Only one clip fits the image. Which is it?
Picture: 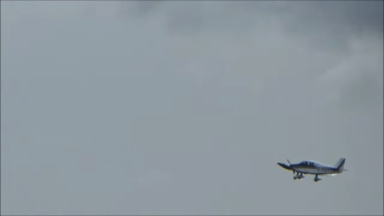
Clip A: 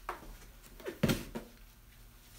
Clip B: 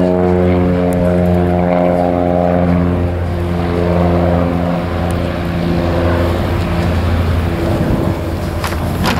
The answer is B